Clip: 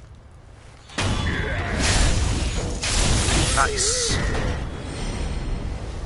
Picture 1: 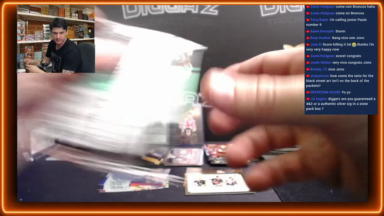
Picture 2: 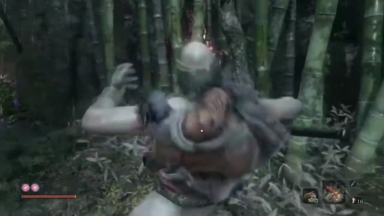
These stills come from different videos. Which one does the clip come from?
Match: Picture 2